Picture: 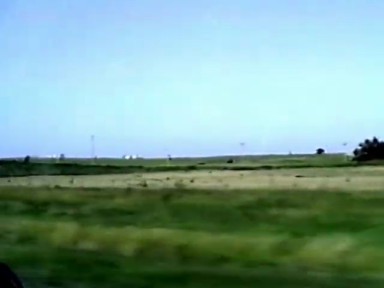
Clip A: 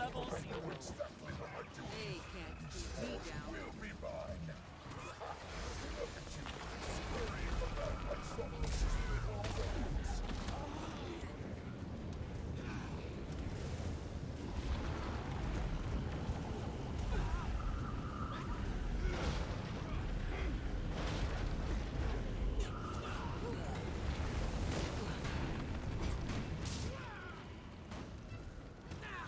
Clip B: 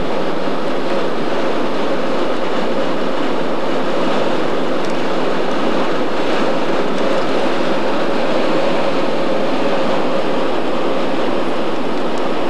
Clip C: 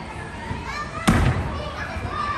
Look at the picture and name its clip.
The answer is B